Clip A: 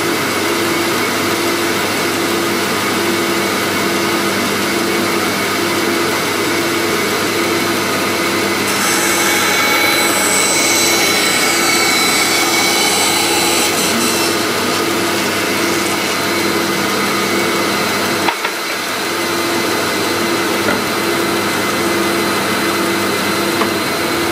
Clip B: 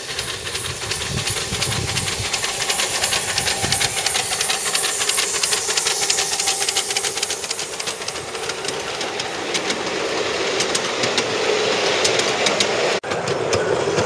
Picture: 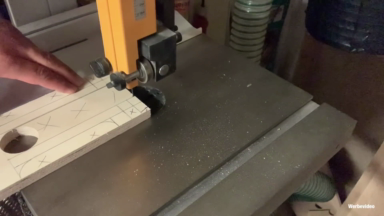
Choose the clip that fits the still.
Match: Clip A